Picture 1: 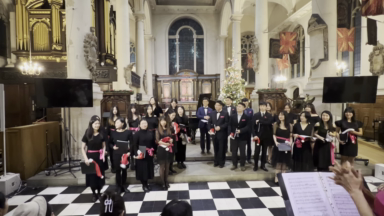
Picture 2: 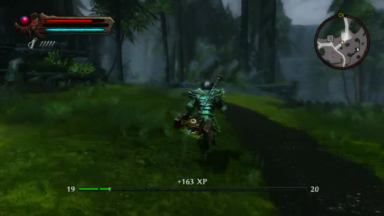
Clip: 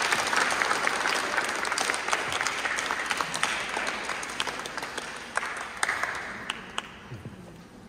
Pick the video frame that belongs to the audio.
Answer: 1